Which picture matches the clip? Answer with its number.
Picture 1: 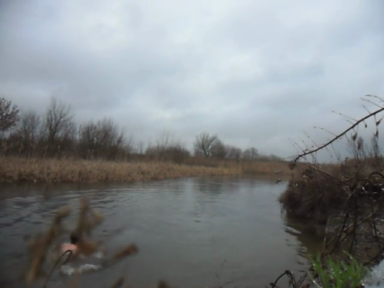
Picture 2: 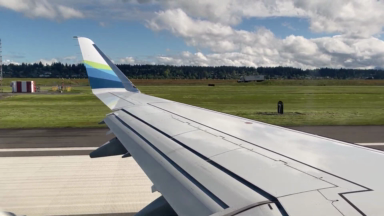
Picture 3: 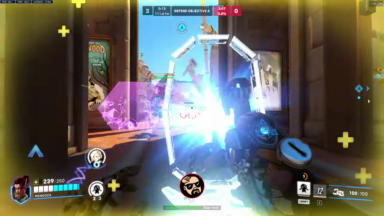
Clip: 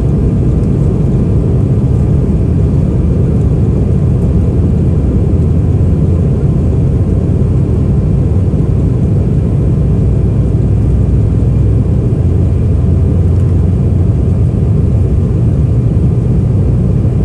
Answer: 2